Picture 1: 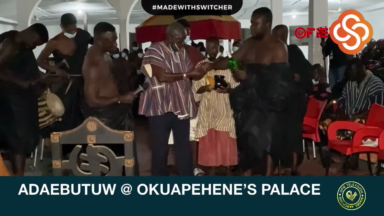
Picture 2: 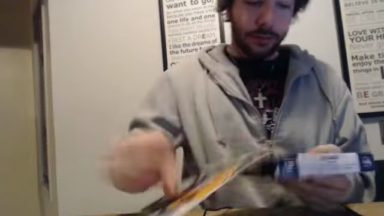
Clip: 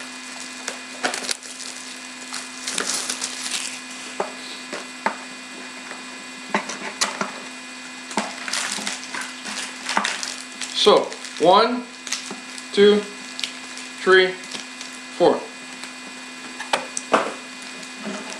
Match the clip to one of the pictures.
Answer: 2